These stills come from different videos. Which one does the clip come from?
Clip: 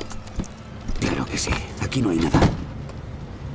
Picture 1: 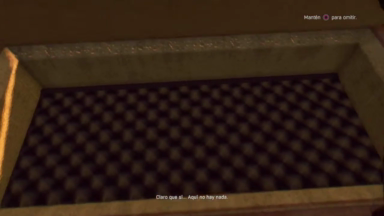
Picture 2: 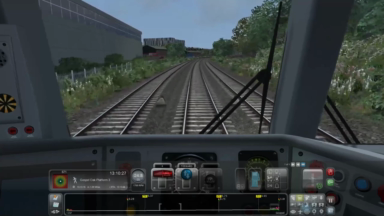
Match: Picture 1